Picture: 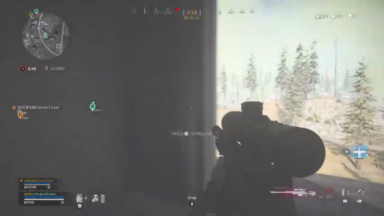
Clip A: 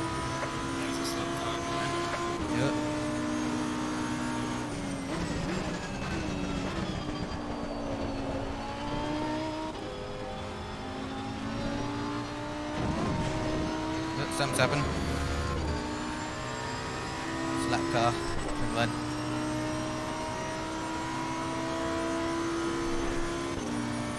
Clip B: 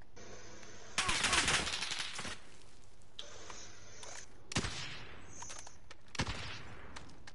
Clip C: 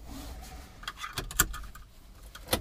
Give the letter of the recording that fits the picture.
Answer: B